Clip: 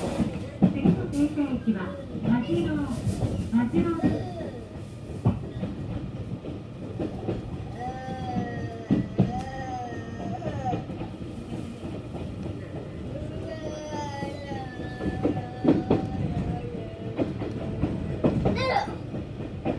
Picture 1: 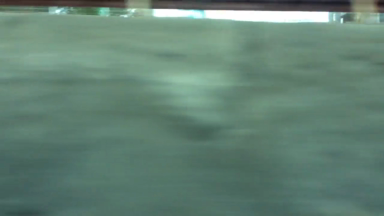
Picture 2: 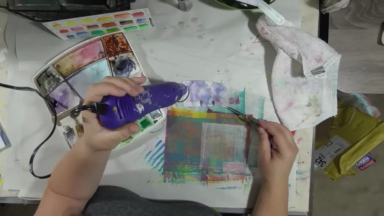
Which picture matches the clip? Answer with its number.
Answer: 1